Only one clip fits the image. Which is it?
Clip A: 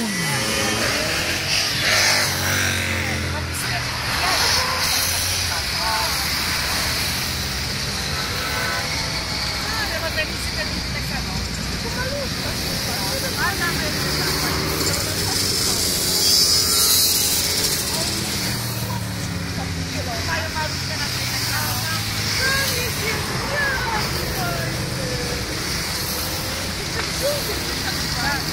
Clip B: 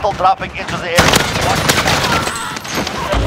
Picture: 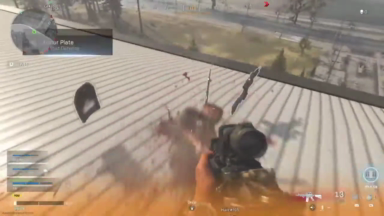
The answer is B